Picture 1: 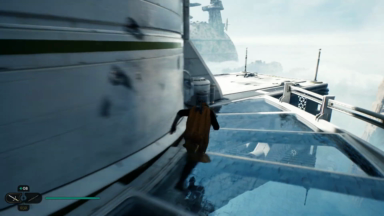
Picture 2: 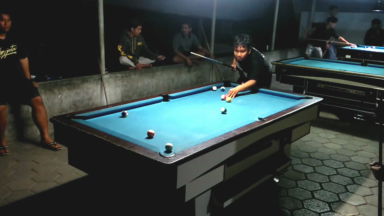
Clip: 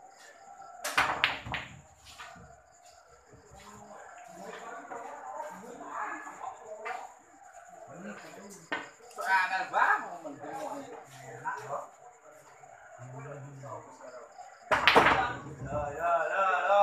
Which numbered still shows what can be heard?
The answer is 2